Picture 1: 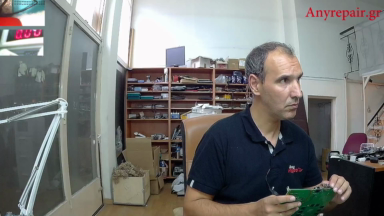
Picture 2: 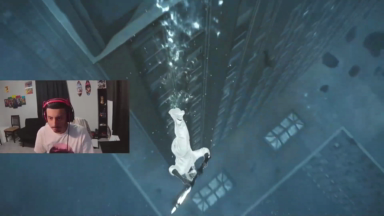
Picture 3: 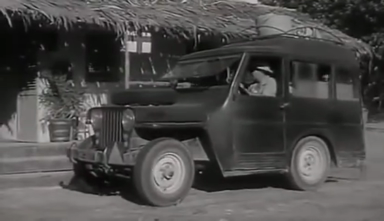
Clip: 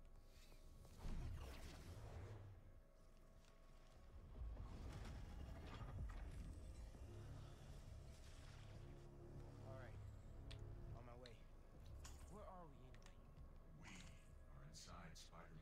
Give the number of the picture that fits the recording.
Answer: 2